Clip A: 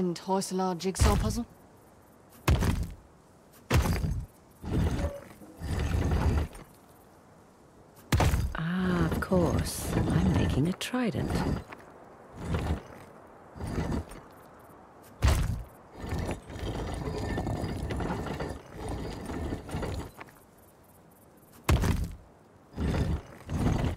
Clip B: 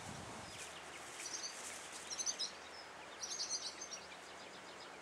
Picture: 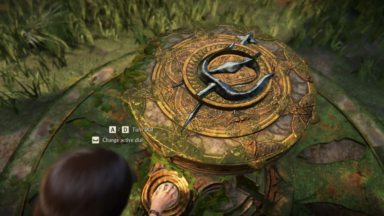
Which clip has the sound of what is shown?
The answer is A